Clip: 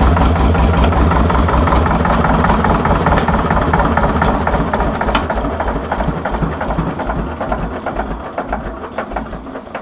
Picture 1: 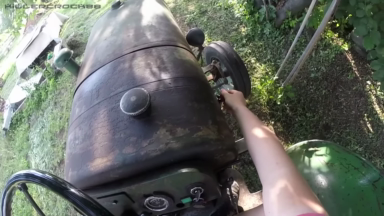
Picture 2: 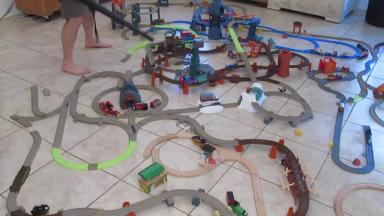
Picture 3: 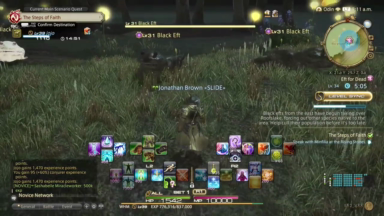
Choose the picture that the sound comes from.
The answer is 1